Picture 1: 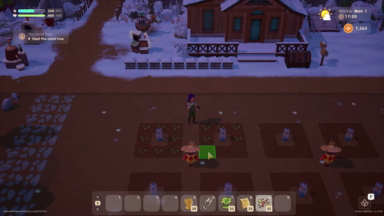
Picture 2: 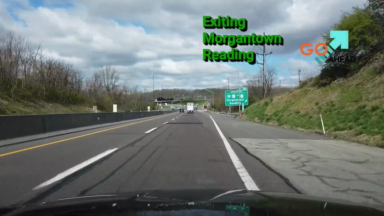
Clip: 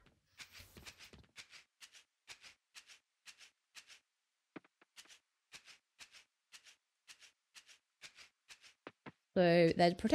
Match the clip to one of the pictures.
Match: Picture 1